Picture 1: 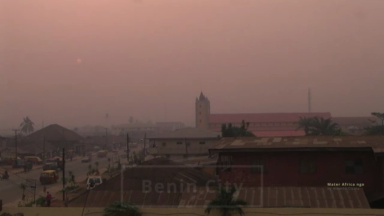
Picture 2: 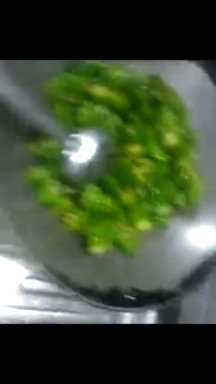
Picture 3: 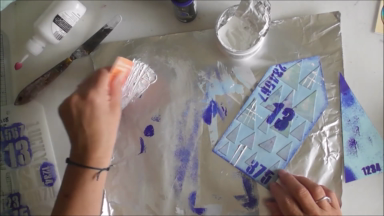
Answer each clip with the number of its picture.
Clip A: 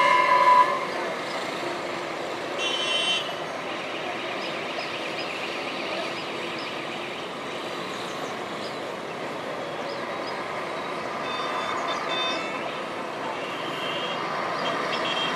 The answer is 1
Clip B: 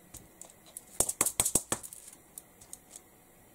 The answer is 3